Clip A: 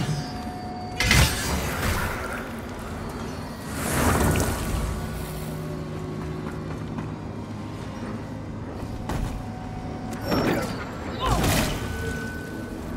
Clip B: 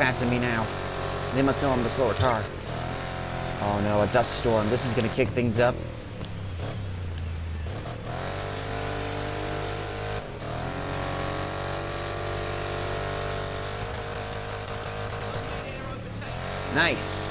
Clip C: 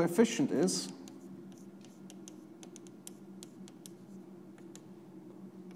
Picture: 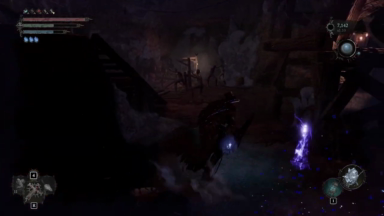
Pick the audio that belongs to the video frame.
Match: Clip A